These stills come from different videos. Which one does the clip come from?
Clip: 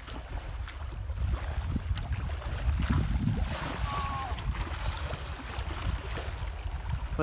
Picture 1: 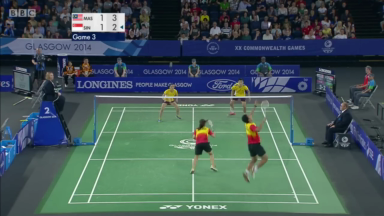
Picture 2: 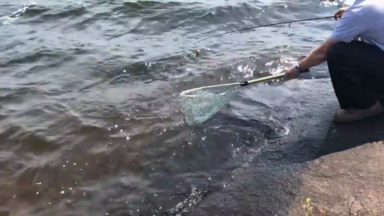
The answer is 2